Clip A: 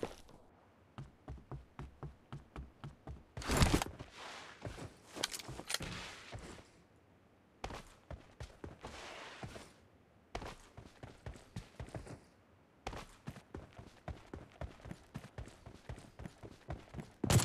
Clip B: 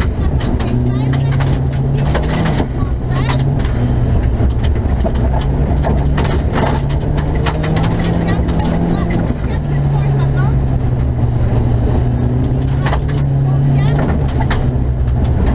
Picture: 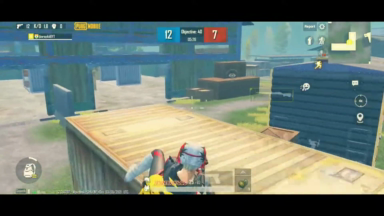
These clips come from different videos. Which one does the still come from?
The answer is A